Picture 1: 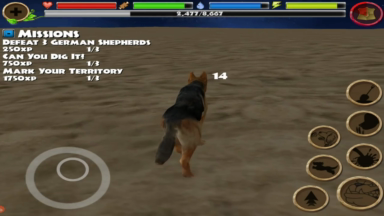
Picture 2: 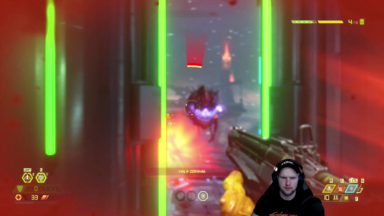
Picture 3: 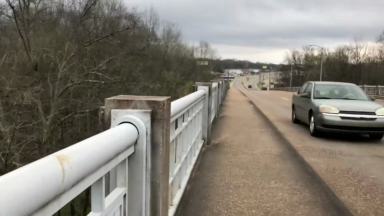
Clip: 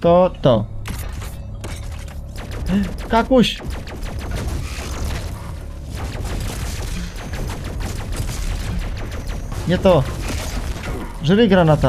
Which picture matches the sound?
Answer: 2